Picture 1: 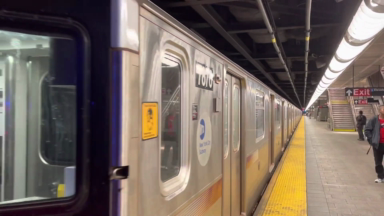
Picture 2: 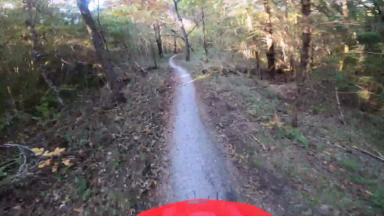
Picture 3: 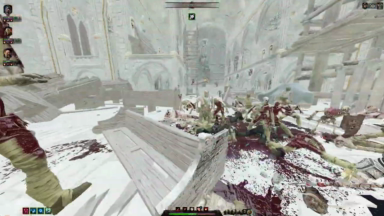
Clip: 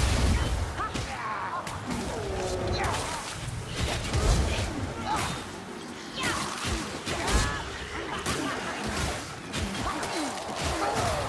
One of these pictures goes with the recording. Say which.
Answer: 3